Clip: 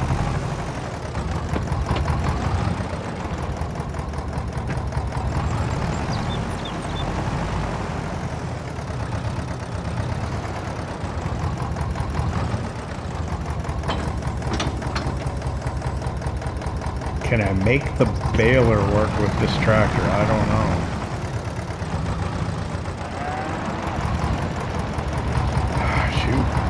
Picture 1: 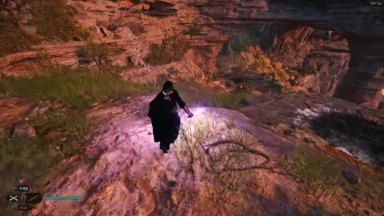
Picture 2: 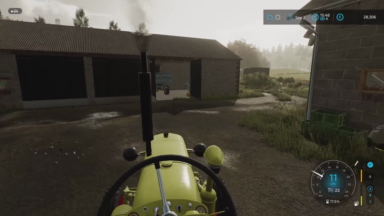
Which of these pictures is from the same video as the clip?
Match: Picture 2